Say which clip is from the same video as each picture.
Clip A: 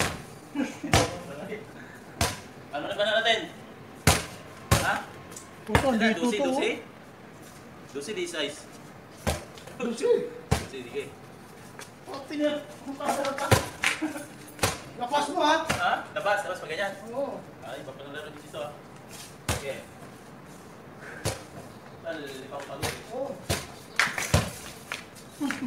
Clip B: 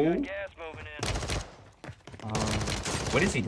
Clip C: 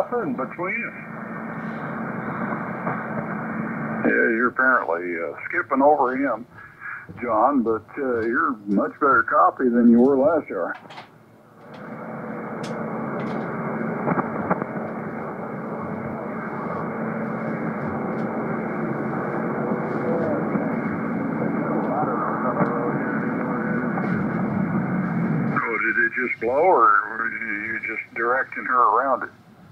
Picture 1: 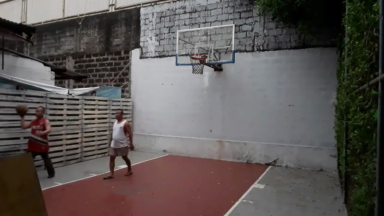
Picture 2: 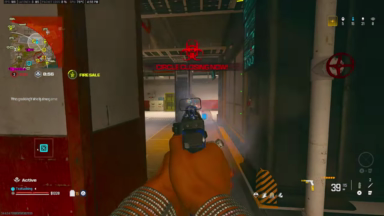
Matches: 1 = A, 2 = B